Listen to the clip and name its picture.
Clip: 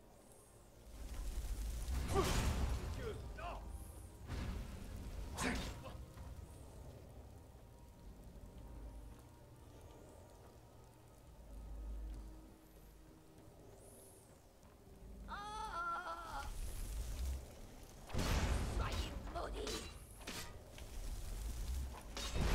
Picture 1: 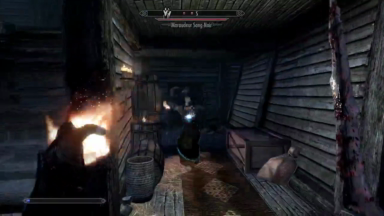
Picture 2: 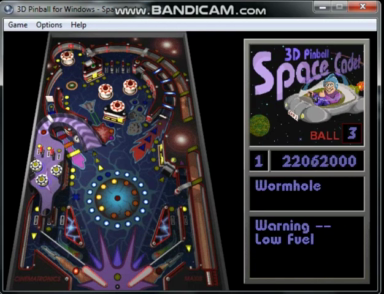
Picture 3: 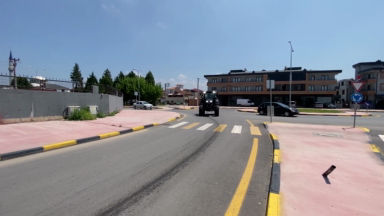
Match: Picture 1